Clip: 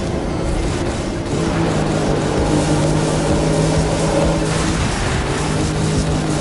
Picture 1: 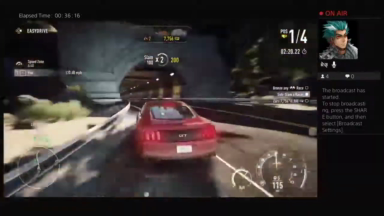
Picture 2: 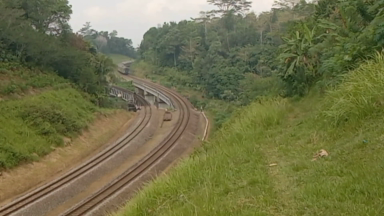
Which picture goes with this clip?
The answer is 1